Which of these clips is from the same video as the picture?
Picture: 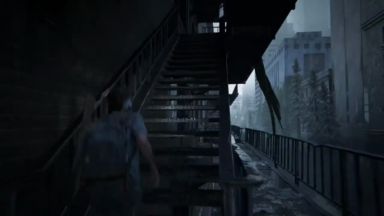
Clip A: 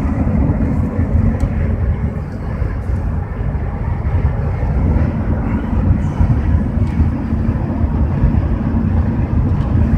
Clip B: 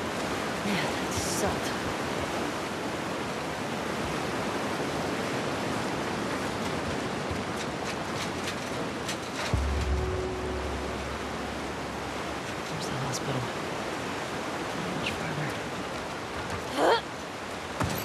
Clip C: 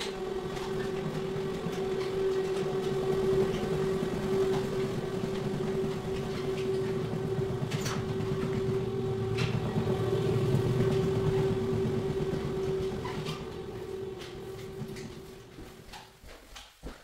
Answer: B